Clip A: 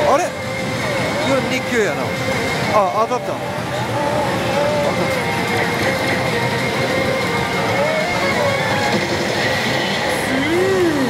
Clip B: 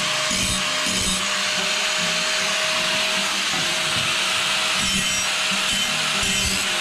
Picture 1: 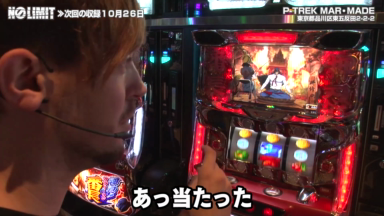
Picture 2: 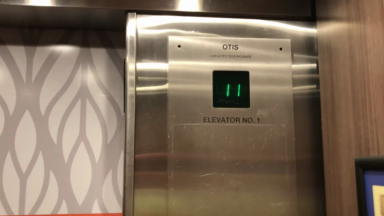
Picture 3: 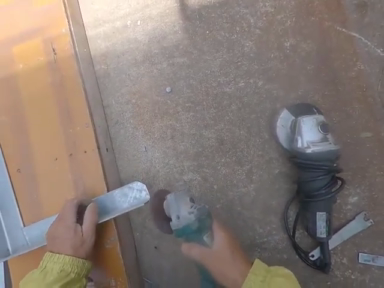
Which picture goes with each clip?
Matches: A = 1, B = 3